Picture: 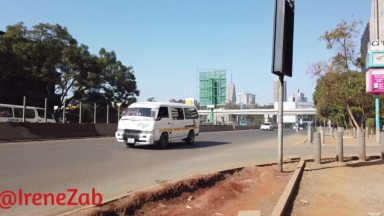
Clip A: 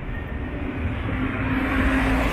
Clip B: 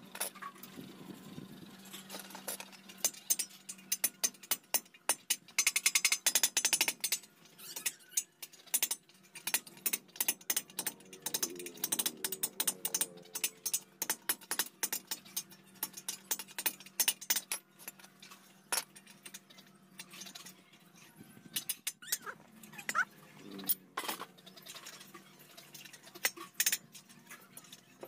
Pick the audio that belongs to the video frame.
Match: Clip A